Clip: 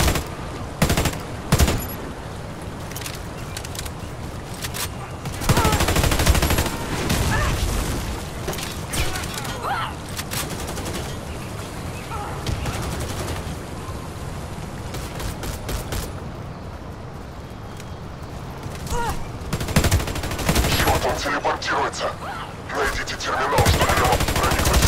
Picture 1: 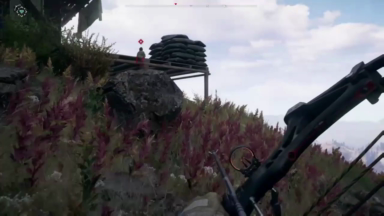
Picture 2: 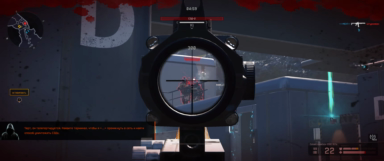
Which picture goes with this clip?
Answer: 2